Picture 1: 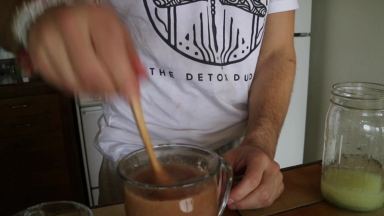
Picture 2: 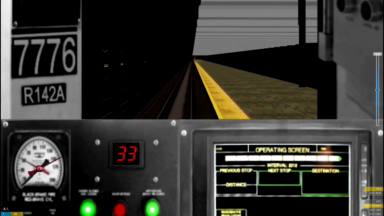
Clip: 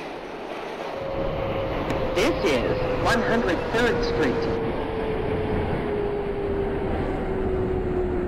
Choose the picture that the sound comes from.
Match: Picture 2